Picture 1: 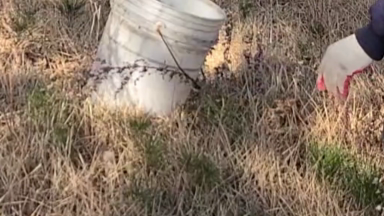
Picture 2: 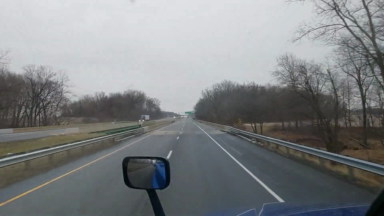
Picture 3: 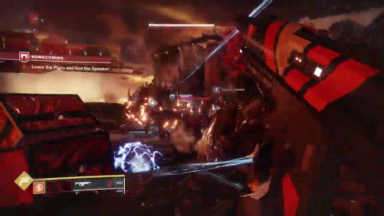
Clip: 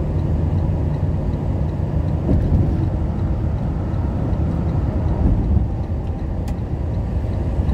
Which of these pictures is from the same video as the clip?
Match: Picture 2